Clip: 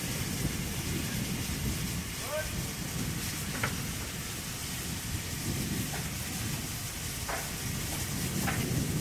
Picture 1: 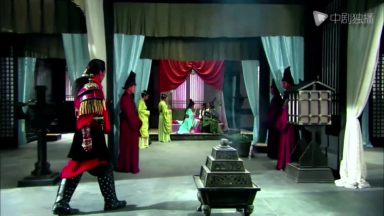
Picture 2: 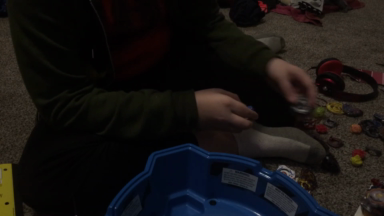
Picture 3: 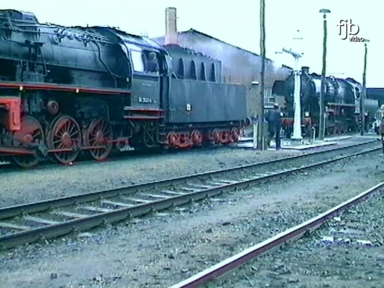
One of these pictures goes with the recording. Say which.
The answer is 3